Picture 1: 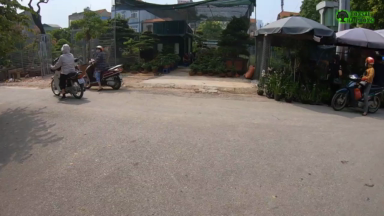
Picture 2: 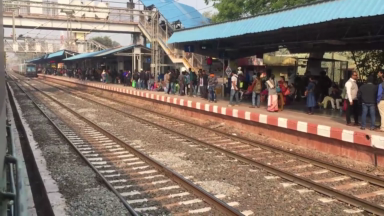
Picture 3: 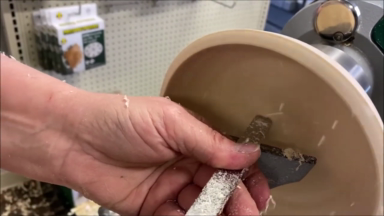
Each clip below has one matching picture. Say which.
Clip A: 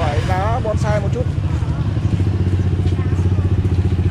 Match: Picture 1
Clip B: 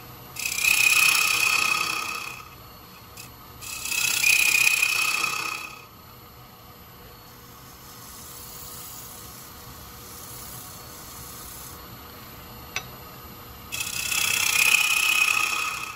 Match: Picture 3